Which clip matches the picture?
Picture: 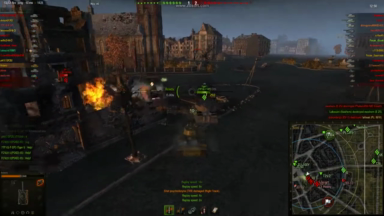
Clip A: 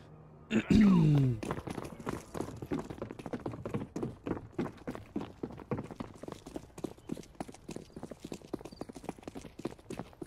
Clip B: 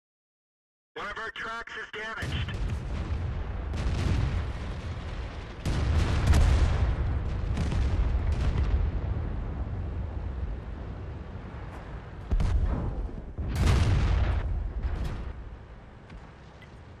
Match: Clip B